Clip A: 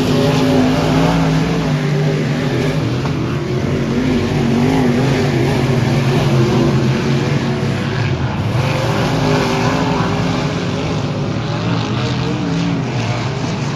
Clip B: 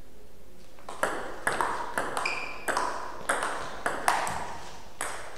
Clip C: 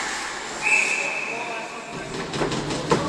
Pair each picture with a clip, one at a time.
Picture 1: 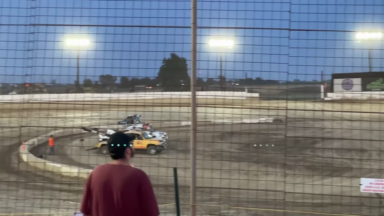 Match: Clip A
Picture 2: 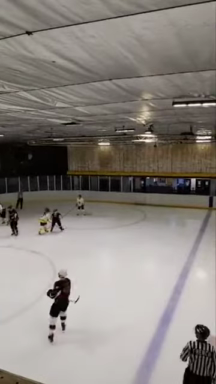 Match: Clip C